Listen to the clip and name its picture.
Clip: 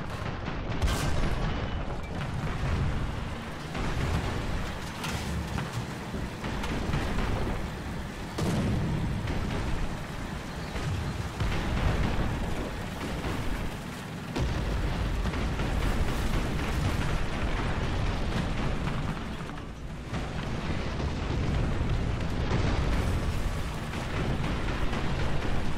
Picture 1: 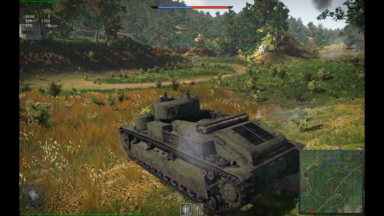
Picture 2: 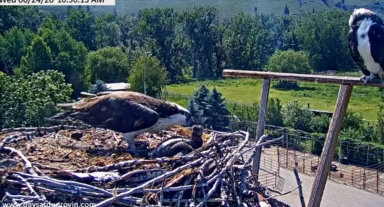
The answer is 1